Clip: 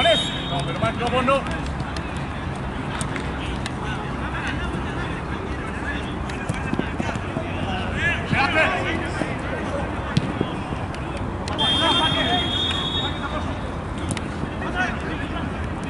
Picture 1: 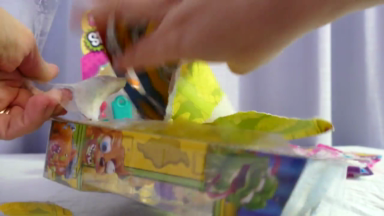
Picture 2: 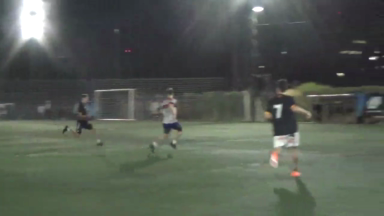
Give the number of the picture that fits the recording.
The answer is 2